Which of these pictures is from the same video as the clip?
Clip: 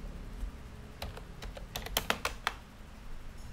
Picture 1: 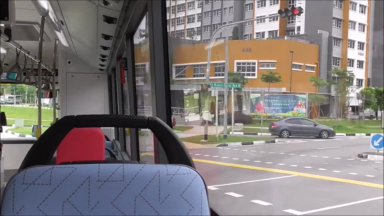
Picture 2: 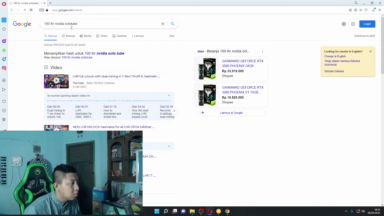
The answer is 2